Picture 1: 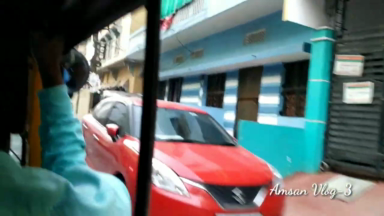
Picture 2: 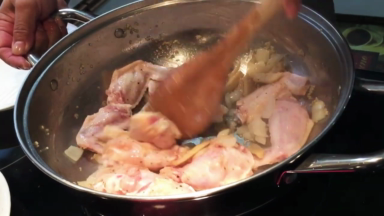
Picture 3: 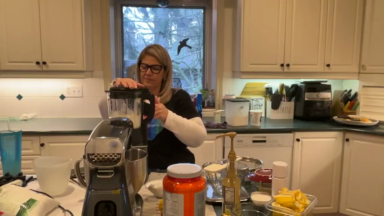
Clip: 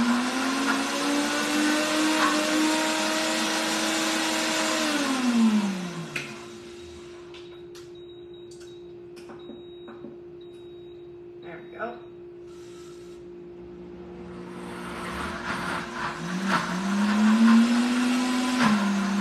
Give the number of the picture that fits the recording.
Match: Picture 3